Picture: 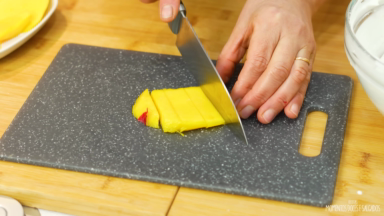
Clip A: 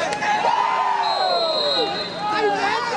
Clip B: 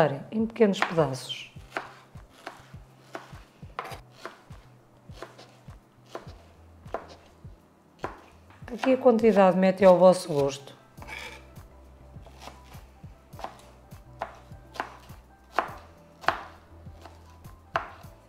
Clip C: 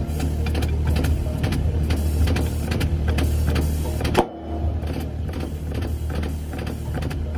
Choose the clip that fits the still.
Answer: B